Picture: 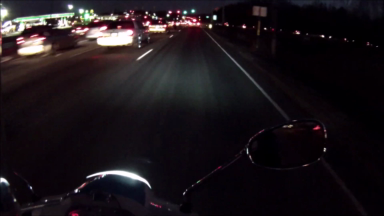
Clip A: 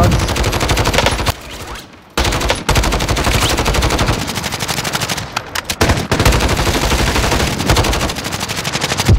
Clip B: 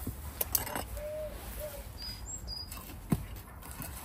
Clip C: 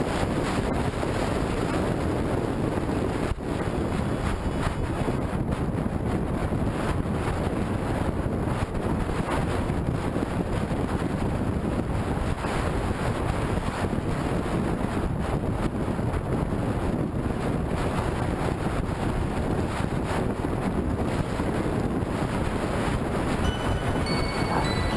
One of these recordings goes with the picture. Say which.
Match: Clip C